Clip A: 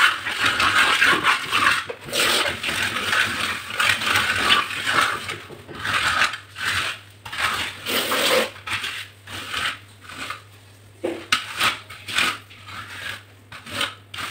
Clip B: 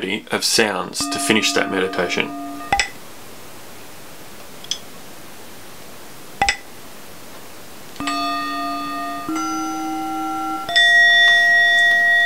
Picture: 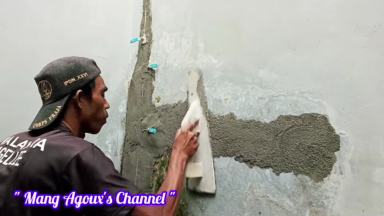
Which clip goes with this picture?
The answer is A